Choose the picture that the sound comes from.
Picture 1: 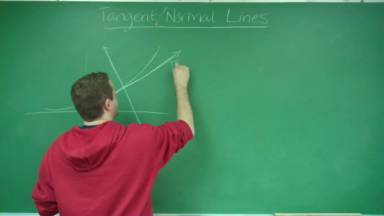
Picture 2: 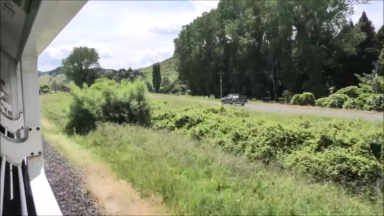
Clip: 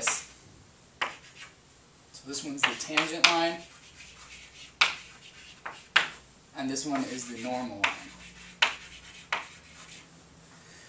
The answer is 1